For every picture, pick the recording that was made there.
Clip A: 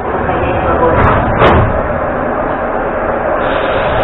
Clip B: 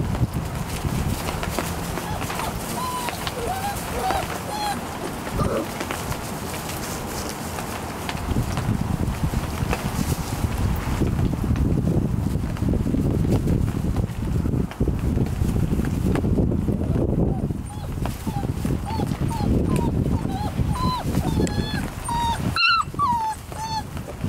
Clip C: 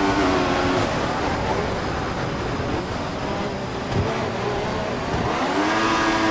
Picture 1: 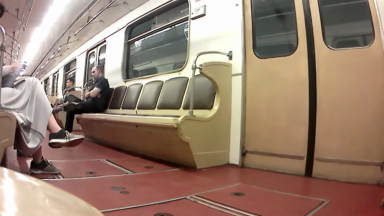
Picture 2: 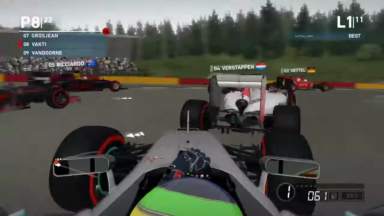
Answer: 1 A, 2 C